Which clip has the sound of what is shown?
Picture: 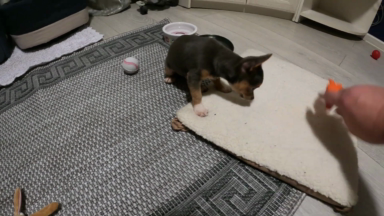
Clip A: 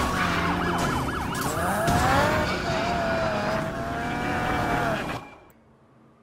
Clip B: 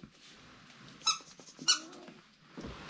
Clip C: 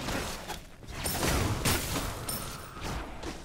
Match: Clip B